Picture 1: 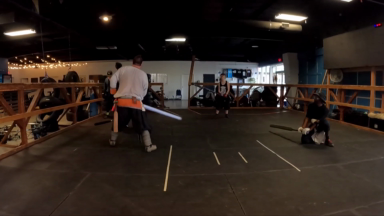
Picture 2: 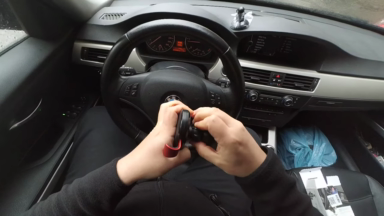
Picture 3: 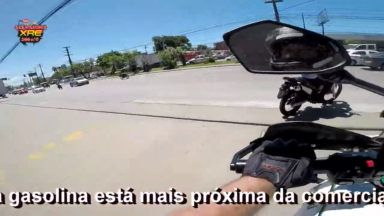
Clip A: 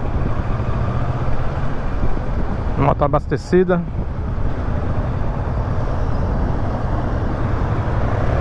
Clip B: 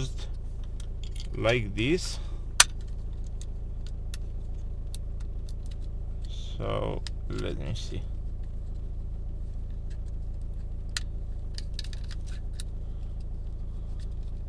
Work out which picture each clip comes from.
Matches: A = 3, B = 2